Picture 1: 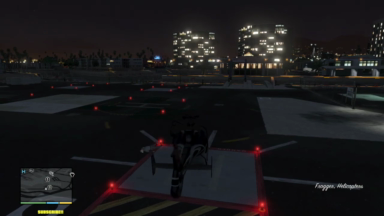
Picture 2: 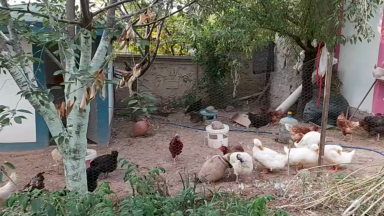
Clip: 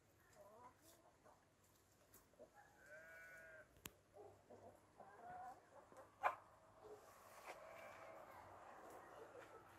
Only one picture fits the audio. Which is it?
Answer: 2